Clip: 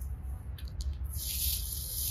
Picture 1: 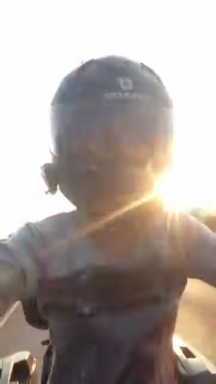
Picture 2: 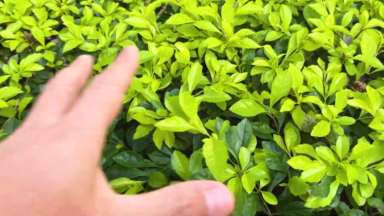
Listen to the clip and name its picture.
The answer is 2